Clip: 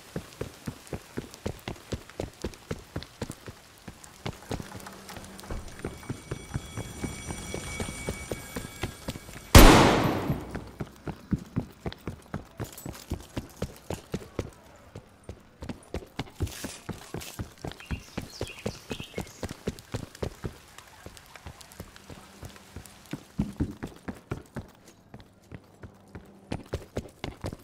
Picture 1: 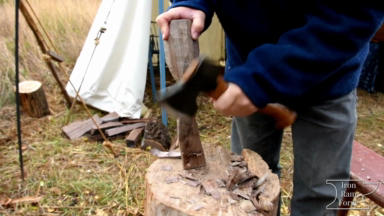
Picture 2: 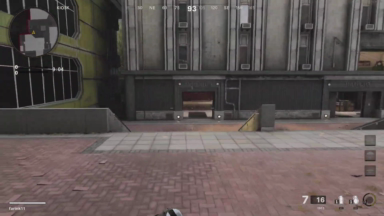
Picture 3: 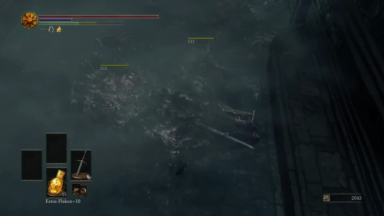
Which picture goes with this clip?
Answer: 2